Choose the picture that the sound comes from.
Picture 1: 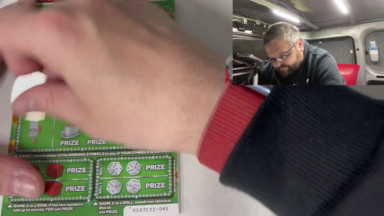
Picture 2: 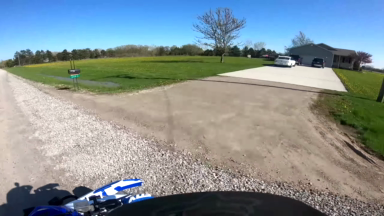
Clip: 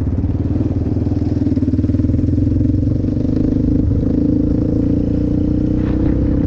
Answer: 2